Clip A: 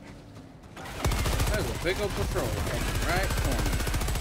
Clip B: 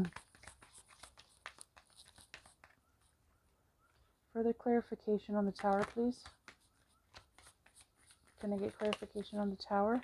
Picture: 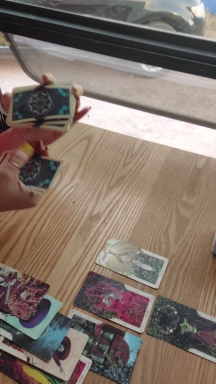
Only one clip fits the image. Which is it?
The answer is B